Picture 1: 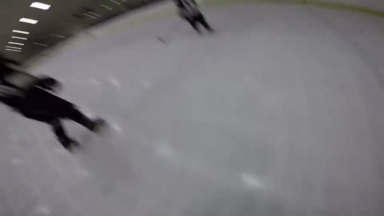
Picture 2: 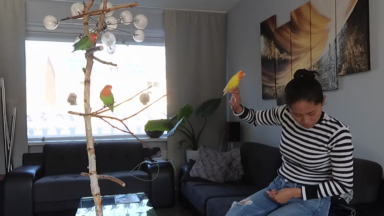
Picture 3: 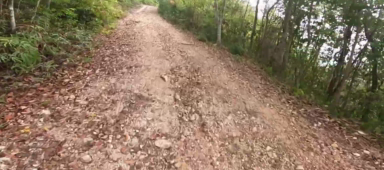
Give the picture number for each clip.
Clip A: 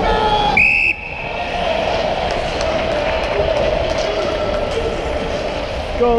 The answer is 1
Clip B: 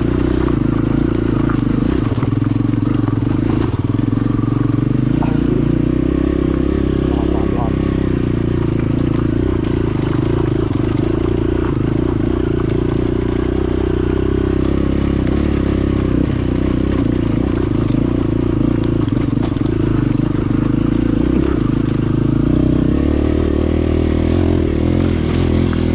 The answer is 3